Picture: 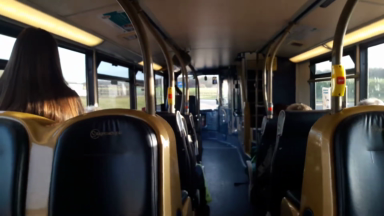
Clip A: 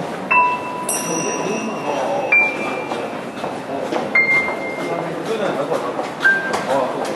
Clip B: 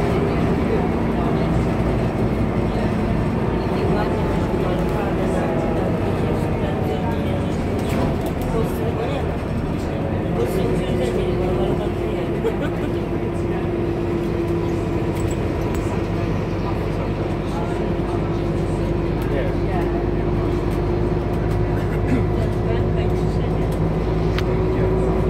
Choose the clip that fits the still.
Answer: B